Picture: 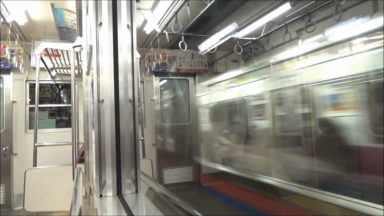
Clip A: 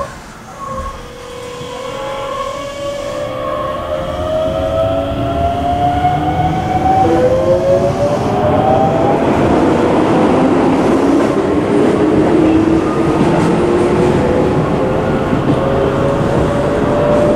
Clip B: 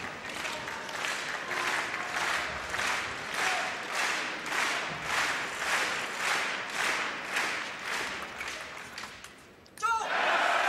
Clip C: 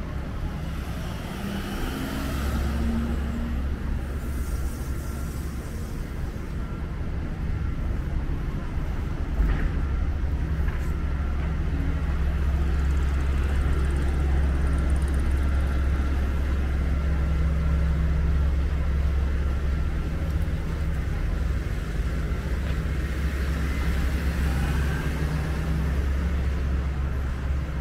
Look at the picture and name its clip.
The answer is A